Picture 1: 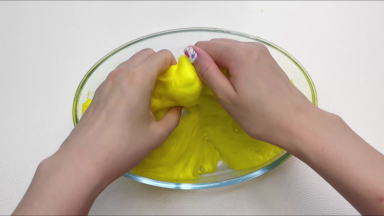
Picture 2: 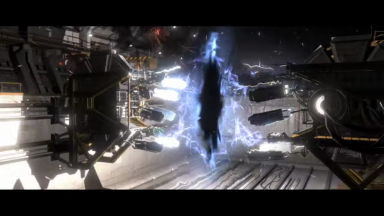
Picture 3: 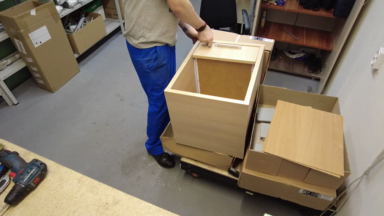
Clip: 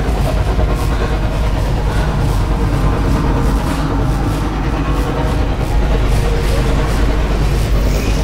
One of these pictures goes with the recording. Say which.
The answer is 2